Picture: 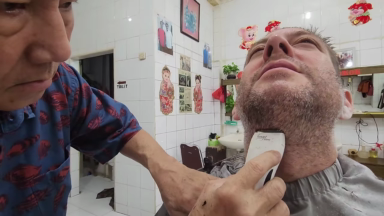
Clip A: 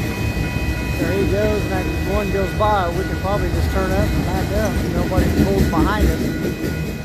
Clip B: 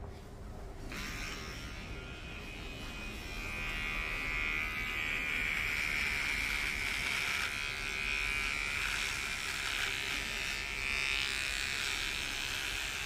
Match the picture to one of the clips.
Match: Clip B